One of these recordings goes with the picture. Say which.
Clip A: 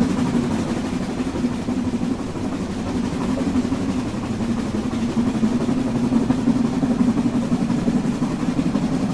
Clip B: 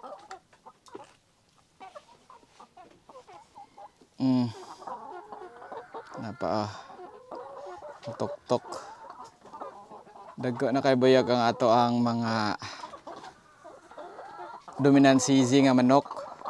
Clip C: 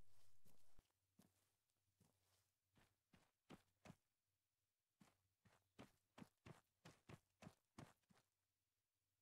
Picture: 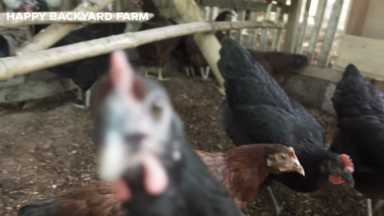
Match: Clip B